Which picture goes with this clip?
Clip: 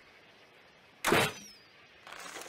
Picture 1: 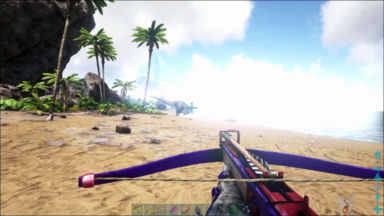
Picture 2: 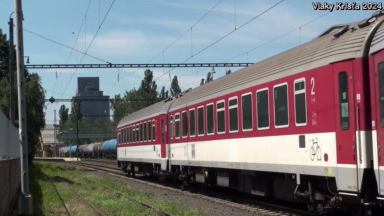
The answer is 1